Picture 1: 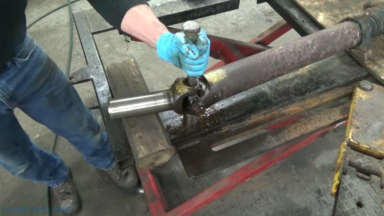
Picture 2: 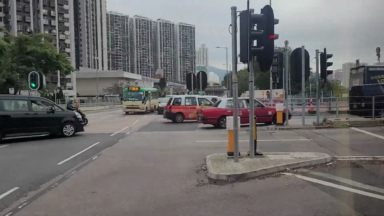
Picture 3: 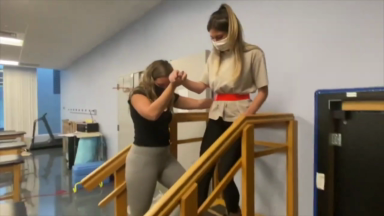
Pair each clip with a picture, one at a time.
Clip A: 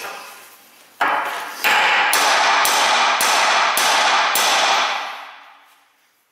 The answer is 1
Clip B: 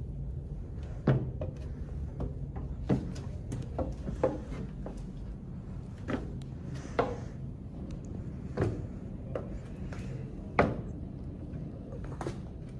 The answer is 3